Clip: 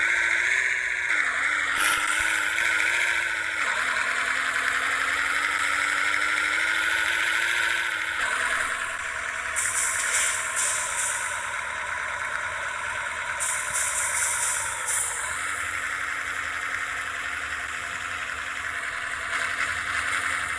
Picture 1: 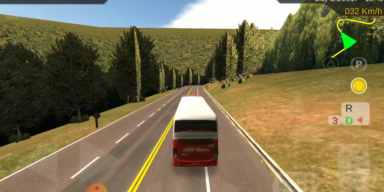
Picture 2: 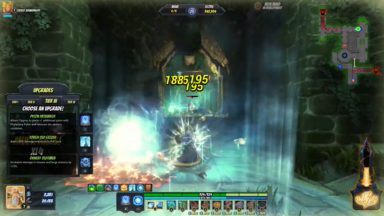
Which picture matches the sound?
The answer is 1